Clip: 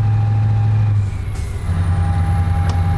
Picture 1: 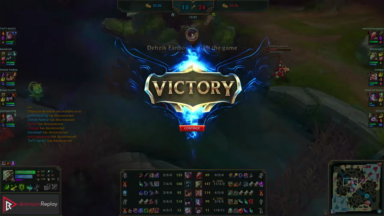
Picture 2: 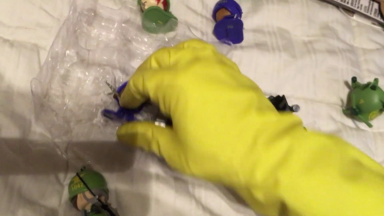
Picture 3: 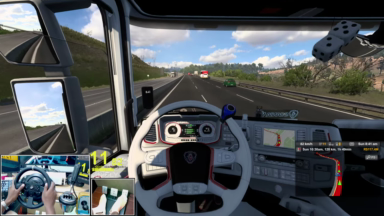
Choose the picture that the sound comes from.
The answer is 3